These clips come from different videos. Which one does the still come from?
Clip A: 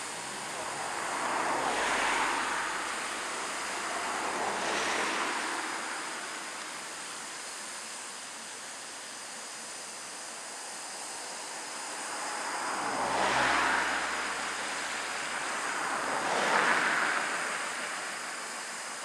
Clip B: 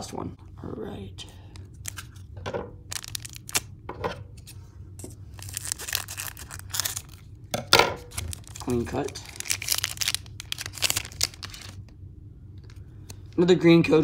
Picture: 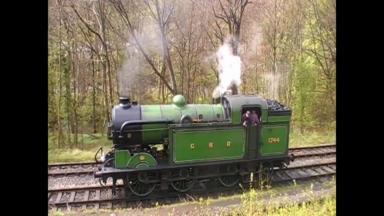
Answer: A